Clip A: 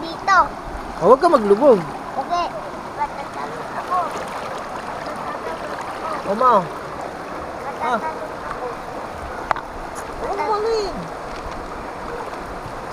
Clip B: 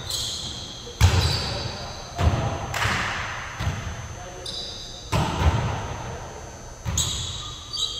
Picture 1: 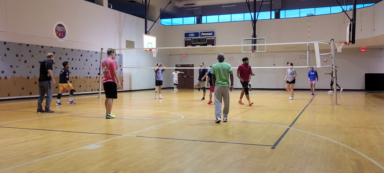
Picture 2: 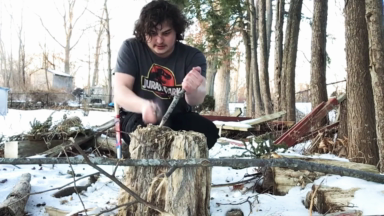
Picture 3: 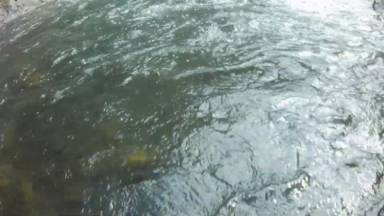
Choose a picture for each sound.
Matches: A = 3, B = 1